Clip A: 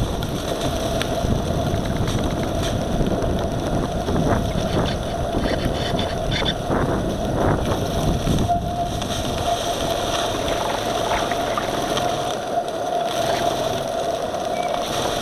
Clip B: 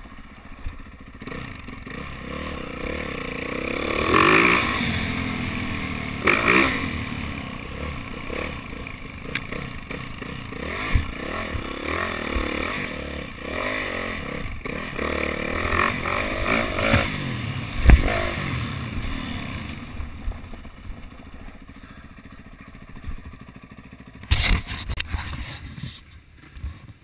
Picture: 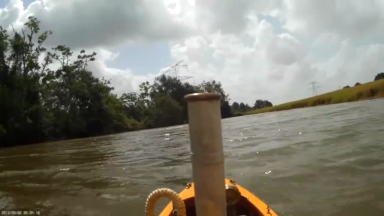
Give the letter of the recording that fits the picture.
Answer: A